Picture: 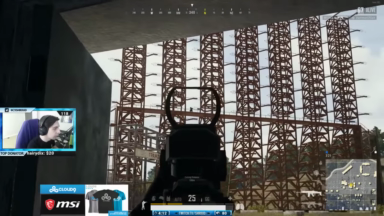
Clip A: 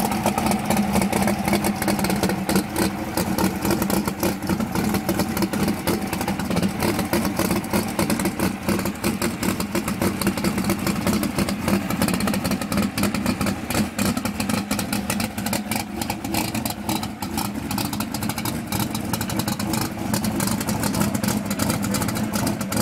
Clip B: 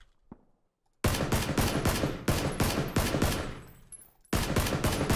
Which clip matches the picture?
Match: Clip B